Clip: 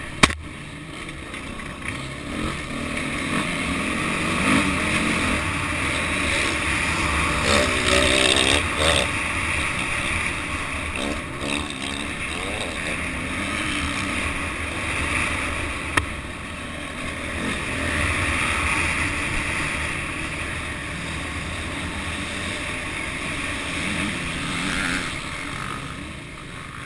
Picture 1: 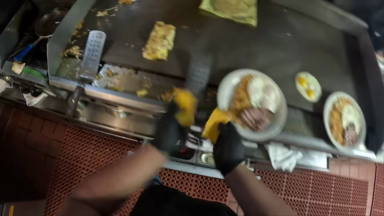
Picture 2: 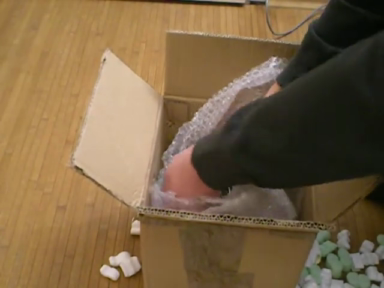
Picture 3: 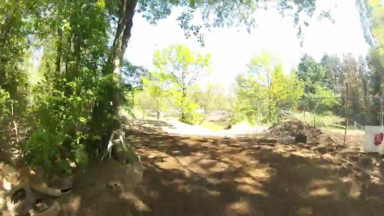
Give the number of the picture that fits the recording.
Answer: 3